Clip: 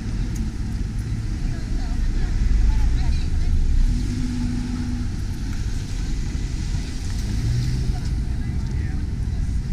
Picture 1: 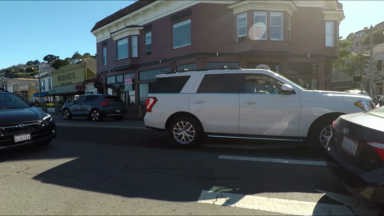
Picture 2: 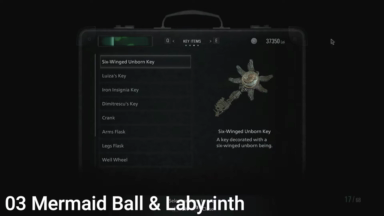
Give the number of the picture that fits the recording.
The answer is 1